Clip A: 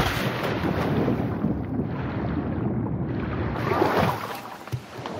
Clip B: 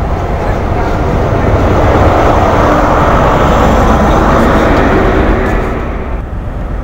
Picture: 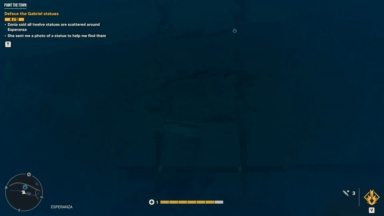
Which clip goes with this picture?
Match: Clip A